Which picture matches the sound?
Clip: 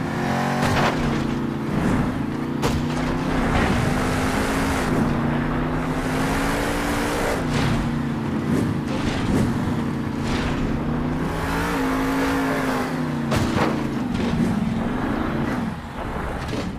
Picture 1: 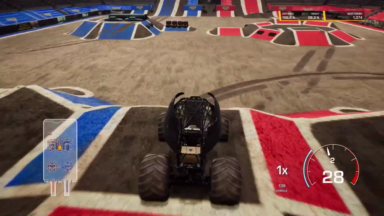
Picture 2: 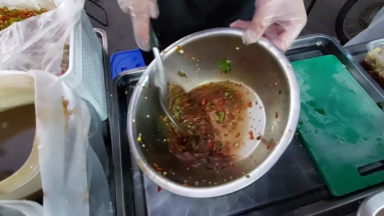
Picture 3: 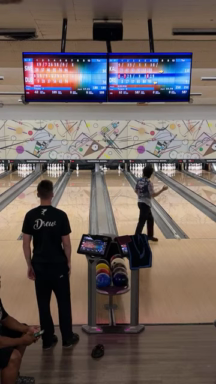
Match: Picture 1